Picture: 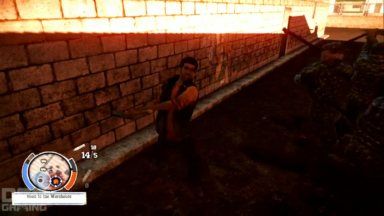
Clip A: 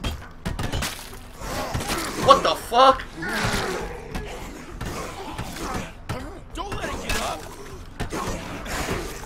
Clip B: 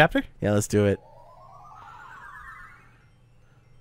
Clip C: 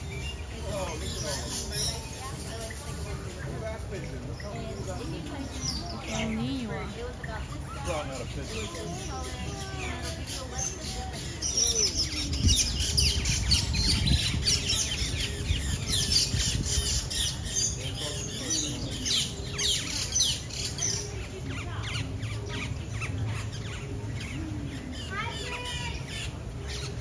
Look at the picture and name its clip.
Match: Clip A